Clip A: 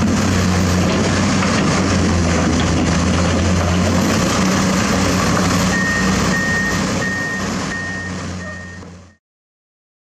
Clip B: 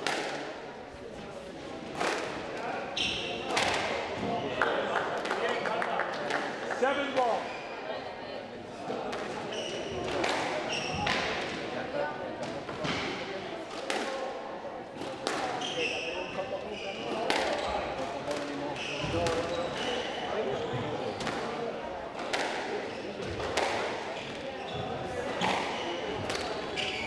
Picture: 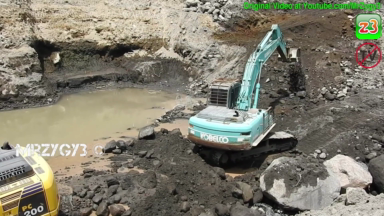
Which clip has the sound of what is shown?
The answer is A